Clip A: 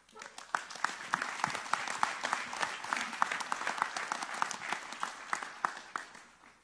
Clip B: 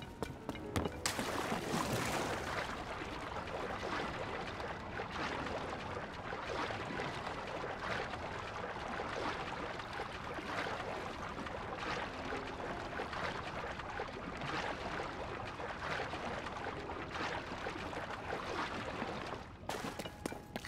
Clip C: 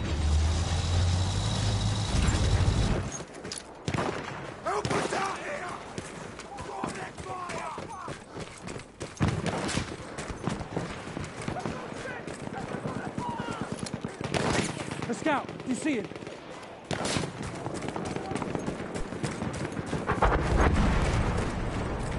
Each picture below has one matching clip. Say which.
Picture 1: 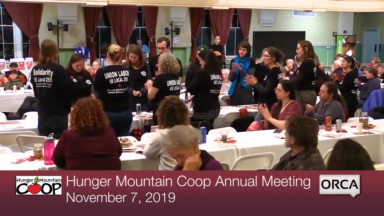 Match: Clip A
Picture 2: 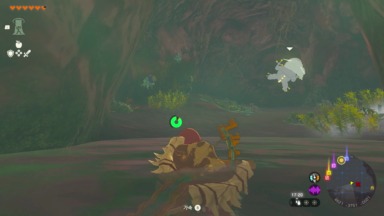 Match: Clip B